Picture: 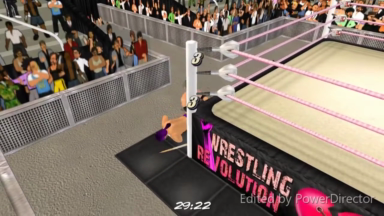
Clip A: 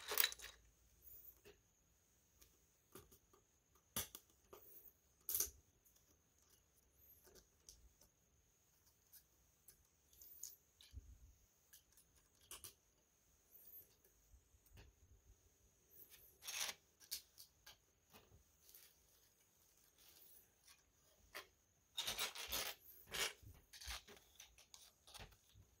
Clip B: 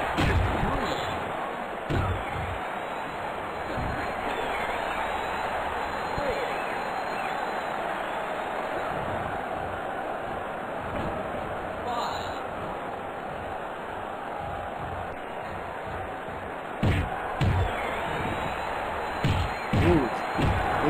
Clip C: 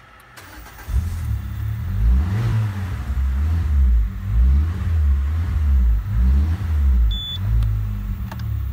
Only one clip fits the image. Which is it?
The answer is B